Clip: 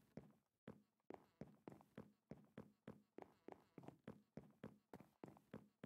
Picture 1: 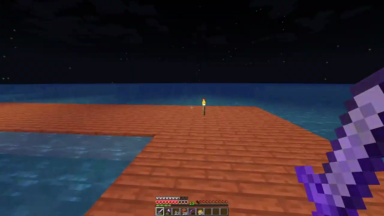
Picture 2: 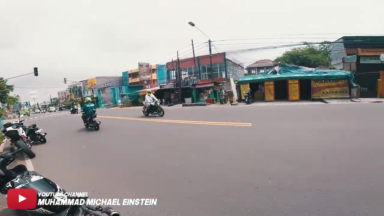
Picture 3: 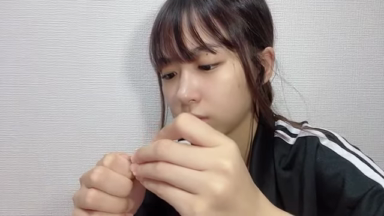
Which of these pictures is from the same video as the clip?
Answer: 1